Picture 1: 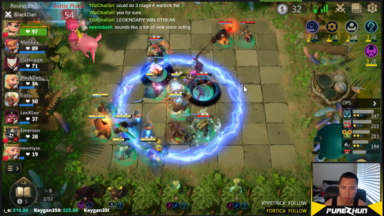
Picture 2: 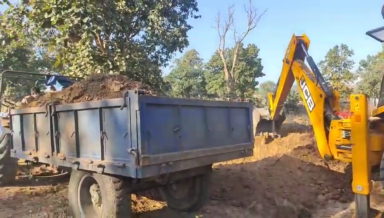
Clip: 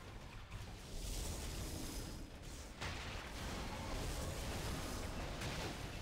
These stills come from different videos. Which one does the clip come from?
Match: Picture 1